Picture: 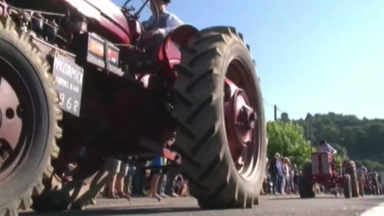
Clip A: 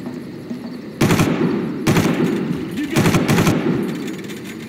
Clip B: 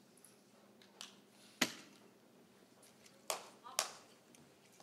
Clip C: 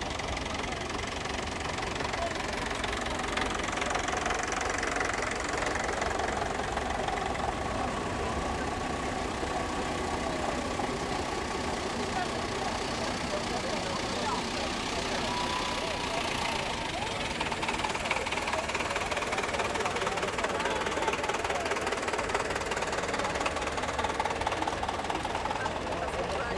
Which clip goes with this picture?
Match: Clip C